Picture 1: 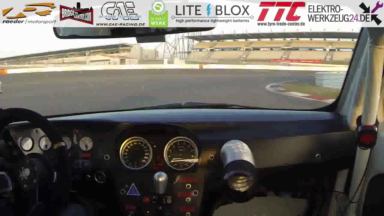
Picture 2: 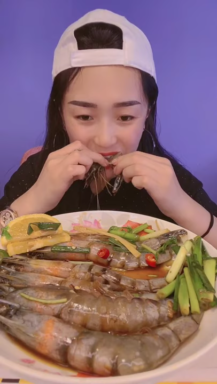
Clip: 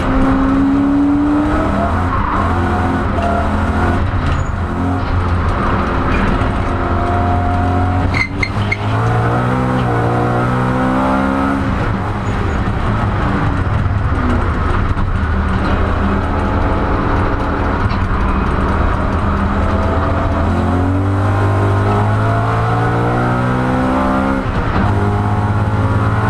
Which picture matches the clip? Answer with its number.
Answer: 1